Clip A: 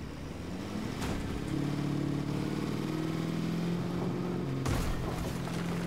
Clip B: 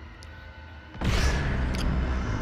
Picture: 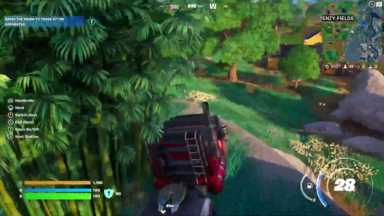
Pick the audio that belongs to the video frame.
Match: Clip A